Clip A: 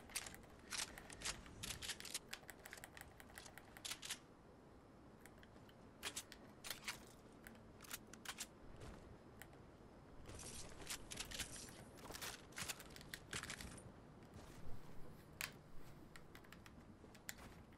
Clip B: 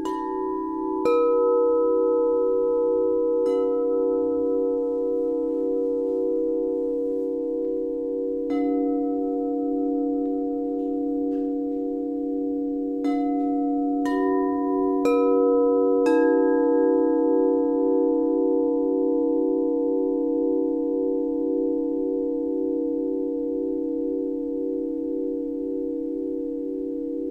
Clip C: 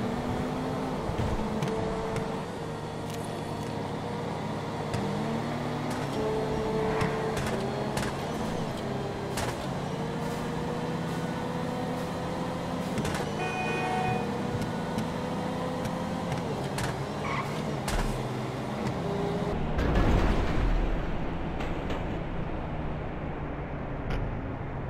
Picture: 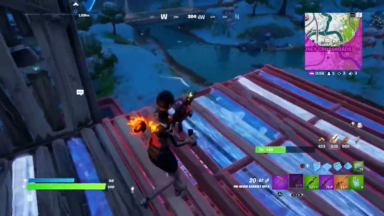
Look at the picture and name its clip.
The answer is A